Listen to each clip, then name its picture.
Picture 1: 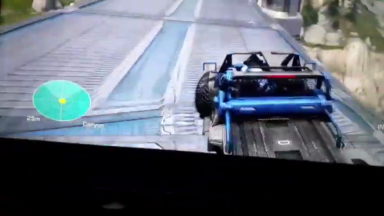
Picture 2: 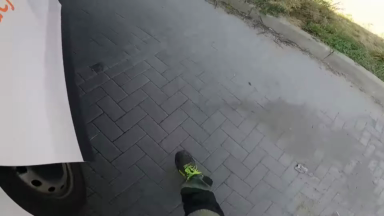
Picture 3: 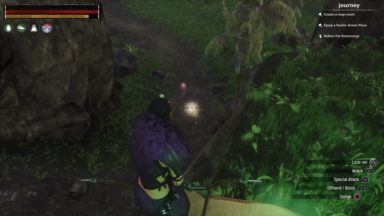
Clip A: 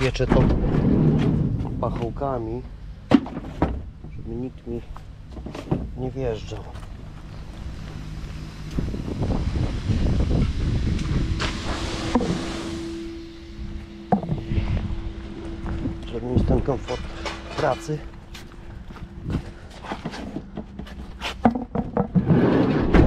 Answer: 2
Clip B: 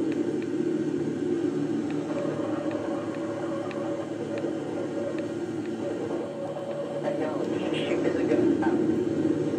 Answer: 1